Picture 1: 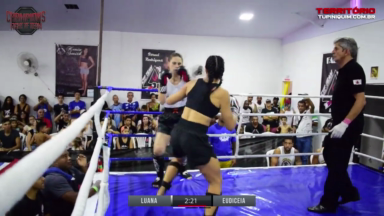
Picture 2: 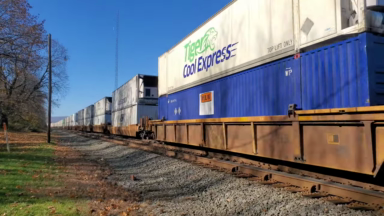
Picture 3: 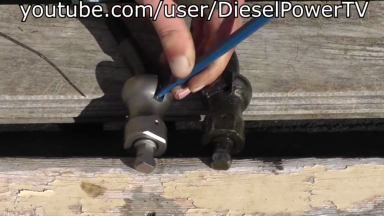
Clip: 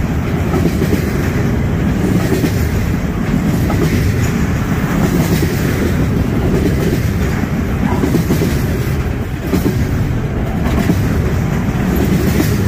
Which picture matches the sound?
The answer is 2